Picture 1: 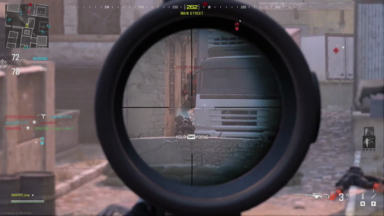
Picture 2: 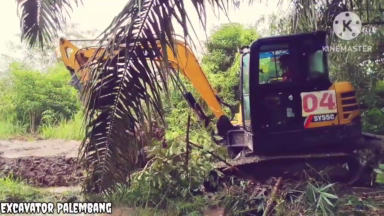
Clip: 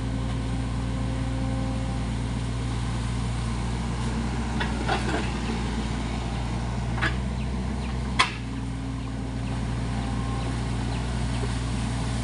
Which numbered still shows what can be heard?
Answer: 2